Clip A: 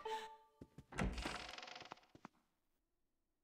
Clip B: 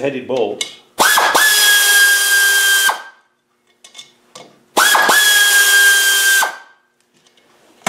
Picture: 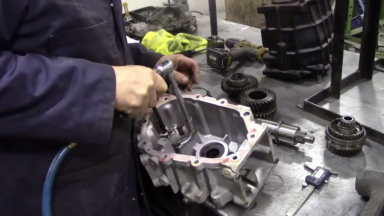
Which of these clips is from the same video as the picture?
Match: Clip B